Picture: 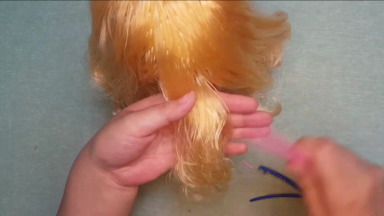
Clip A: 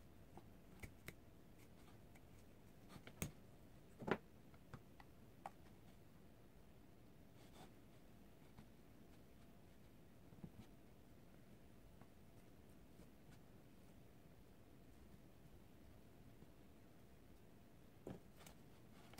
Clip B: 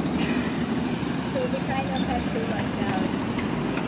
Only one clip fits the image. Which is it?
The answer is A